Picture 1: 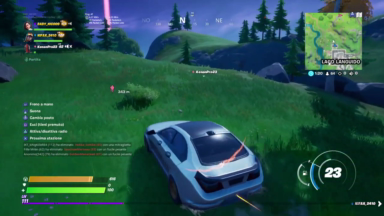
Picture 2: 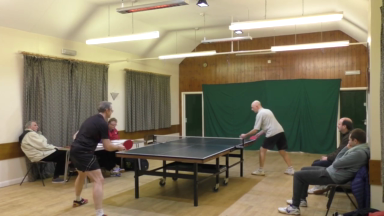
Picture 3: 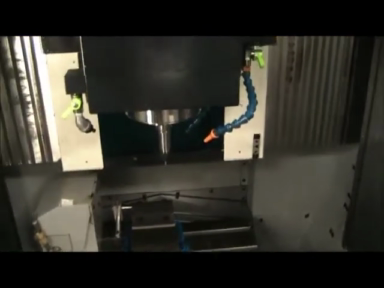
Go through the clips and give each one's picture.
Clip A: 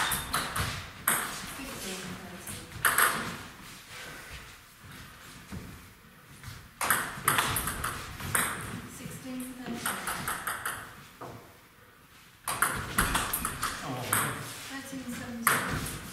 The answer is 2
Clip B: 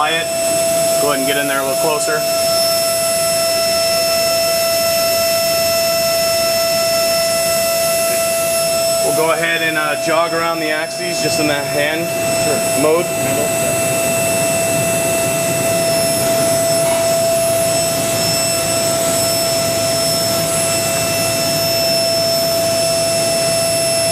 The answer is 3